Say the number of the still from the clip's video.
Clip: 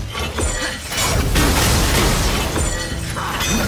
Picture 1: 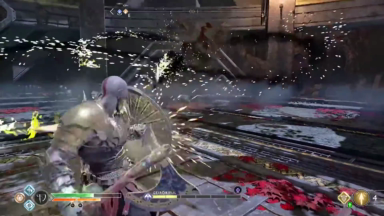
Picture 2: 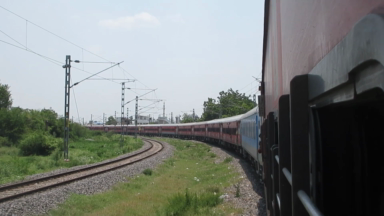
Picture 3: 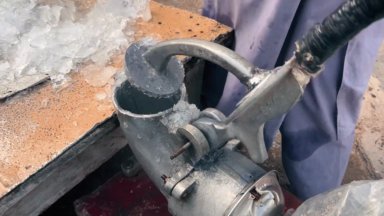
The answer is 1